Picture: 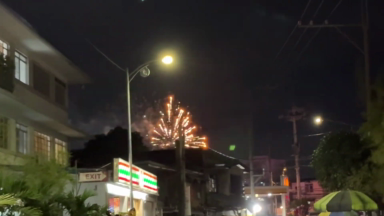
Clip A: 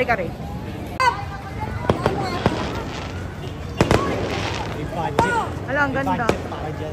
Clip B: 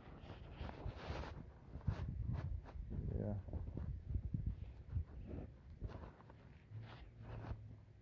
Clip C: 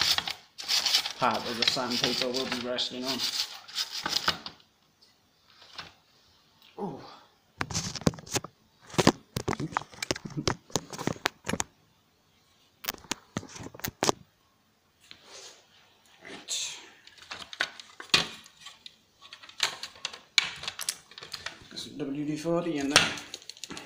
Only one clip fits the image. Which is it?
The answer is A